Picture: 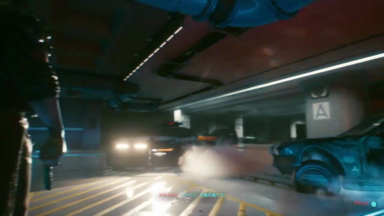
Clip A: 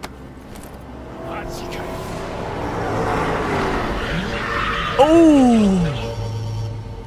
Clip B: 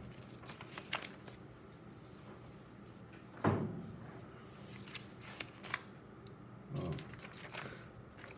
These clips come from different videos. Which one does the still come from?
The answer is A